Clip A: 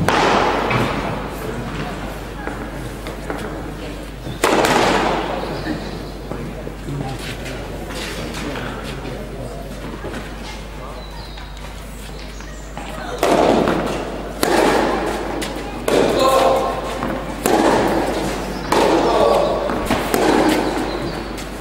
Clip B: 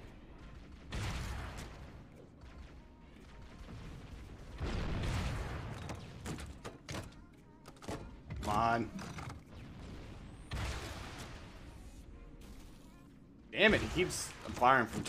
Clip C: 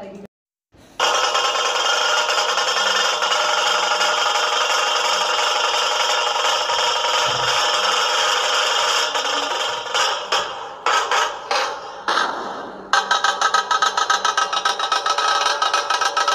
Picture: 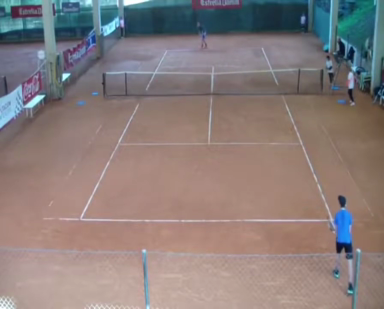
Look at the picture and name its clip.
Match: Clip A